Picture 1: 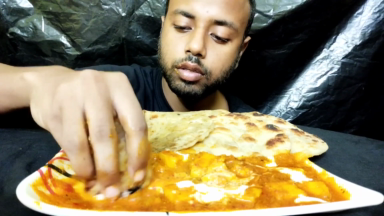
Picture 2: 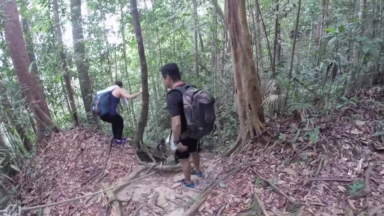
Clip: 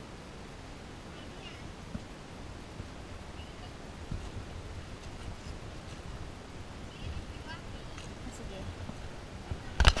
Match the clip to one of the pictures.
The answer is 2